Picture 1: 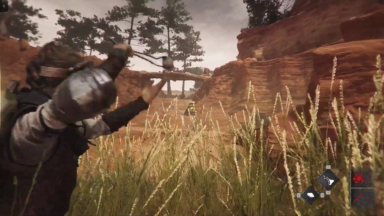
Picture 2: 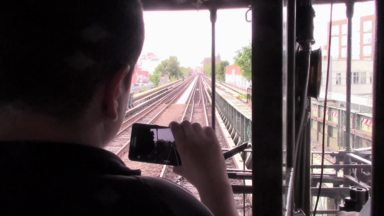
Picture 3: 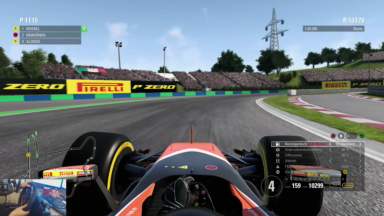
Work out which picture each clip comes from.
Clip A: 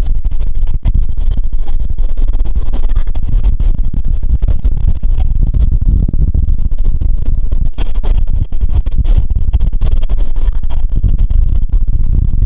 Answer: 2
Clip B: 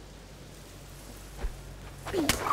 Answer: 1